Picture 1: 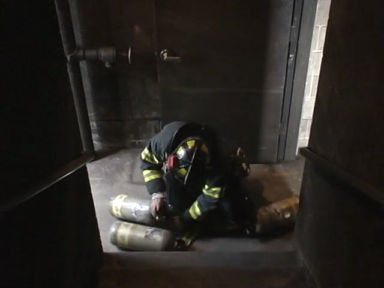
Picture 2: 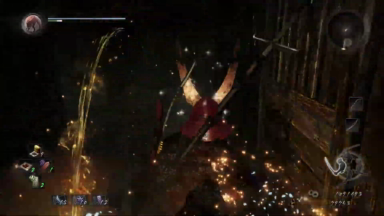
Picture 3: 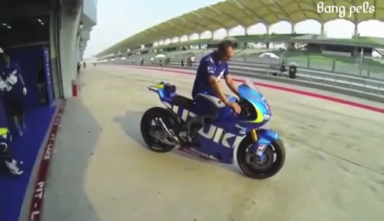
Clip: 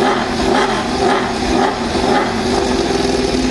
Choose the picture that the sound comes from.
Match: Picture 3